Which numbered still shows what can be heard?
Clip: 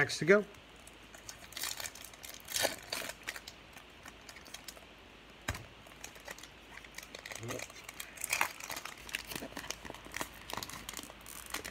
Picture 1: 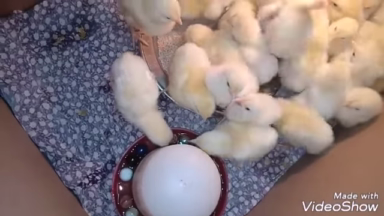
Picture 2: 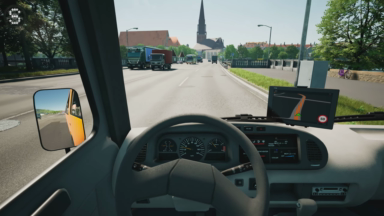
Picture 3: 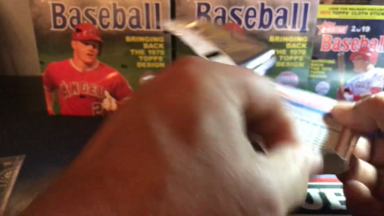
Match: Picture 3